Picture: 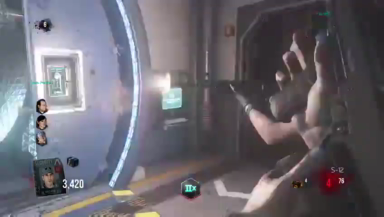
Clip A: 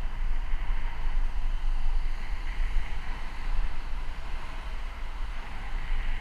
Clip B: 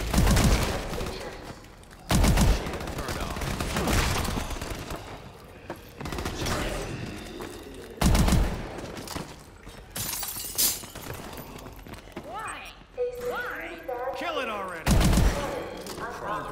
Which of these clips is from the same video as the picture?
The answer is B